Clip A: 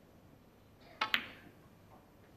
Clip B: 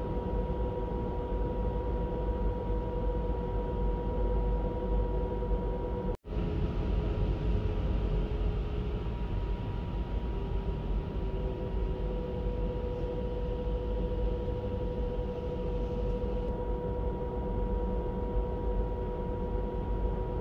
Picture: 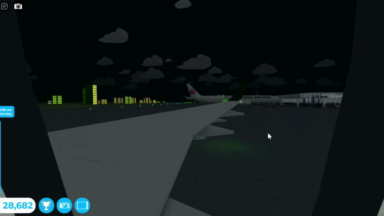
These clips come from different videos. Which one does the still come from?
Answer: B